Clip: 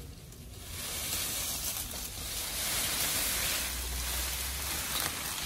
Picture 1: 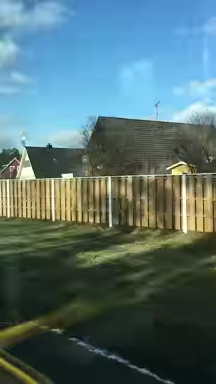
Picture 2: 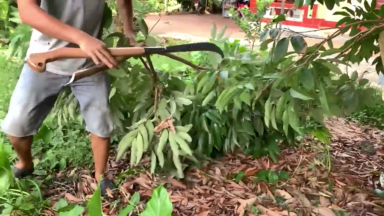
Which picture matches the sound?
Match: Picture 2